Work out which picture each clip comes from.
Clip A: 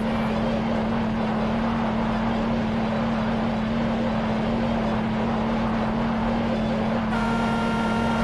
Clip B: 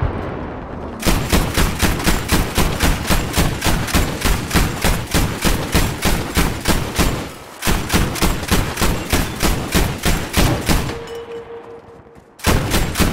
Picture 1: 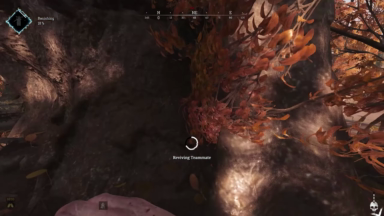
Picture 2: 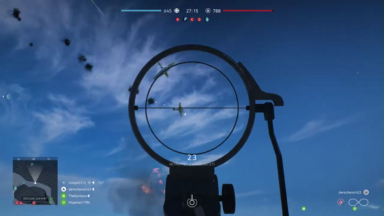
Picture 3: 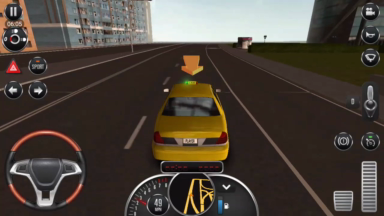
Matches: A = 3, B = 2